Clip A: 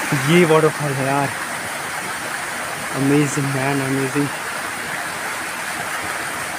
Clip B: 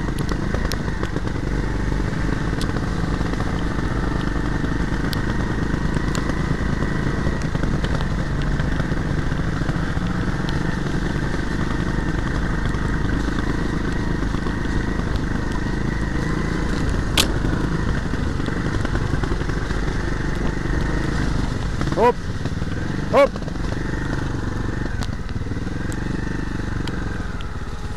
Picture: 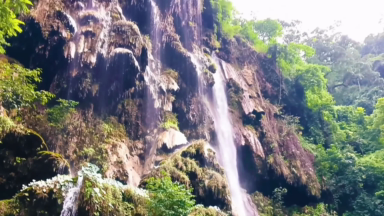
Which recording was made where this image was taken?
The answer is A